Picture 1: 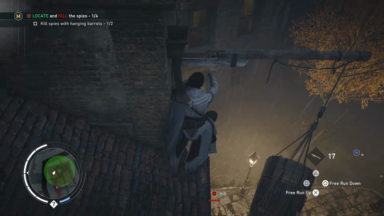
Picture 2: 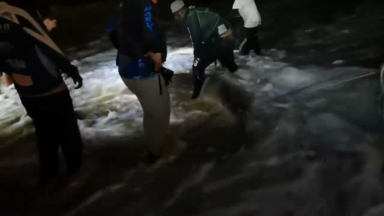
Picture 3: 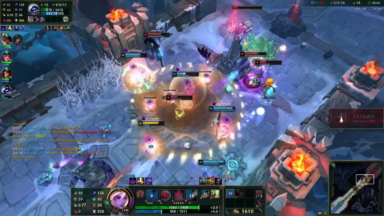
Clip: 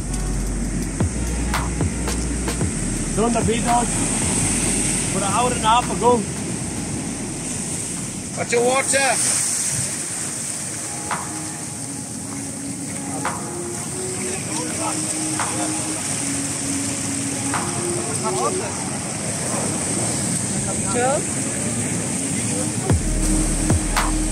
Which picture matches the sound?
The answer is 2